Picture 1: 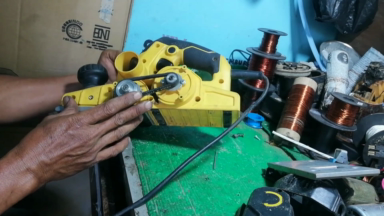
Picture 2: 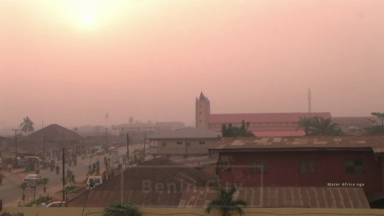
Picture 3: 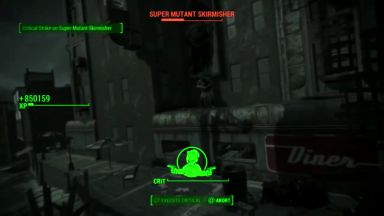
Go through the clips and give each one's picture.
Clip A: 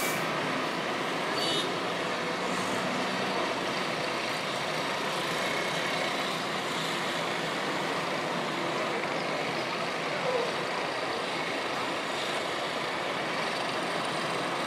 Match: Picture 2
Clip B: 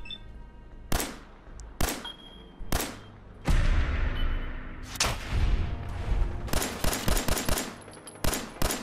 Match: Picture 3